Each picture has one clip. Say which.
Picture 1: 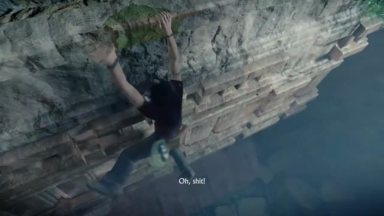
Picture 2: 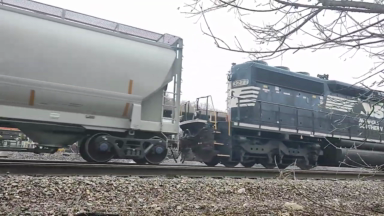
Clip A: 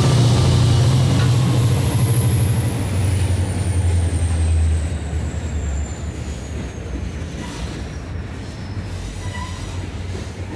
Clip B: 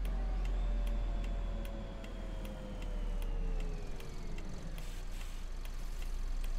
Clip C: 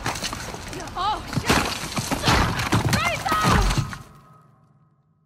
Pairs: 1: C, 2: A